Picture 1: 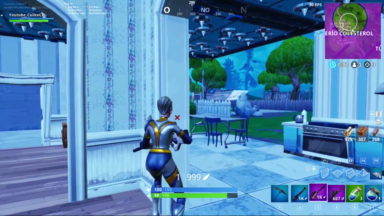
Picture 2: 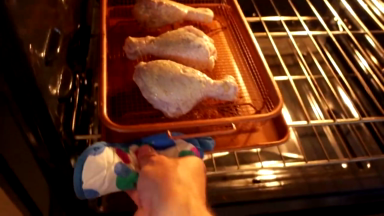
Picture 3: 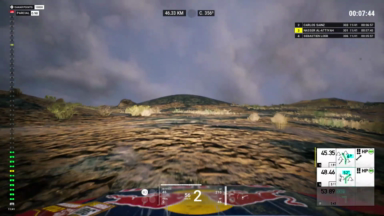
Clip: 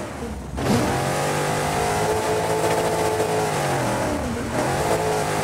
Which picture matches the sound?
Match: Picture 3